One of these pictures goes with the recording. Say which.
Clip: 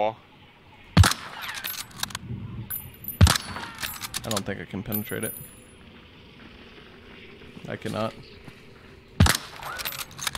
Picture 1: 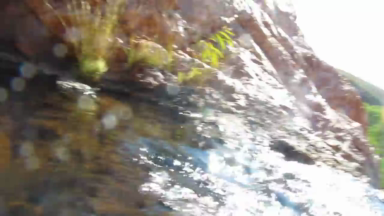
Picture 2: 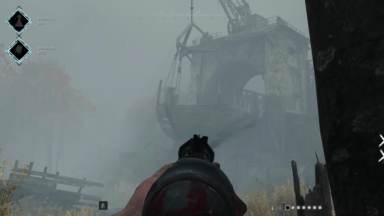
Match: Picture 2